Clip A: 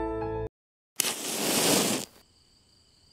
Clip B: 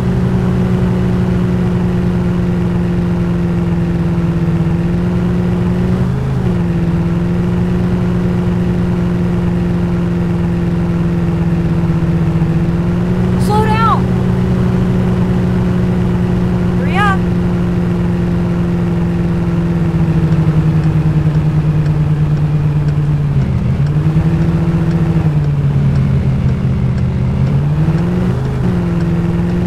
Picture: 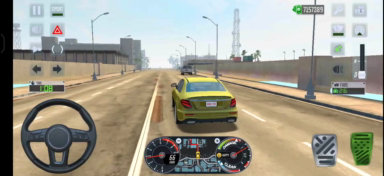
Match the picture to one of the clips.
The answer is B